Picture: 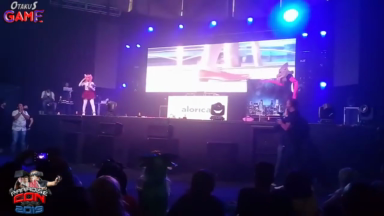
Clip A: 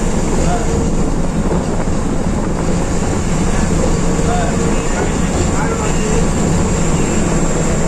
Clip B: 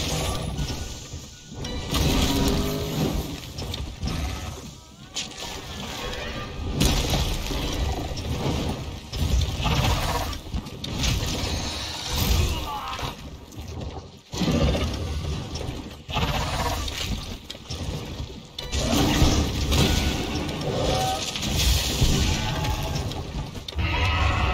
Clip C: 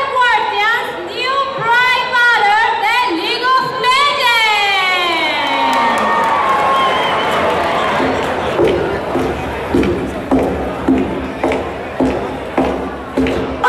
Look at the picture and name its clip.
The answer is C